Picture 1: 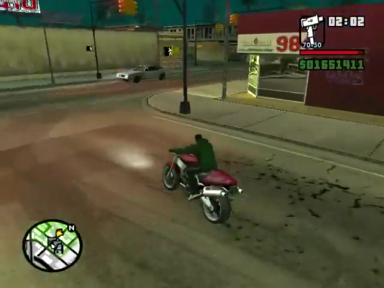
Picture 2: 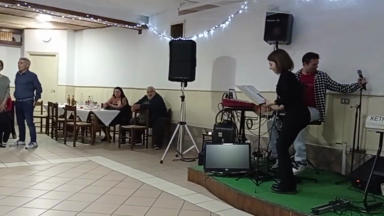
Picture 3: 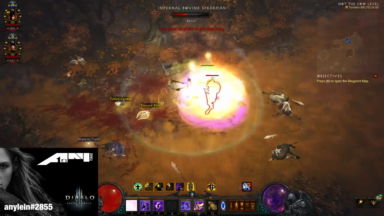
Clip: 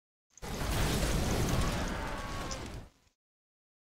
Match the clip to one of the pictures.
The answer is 3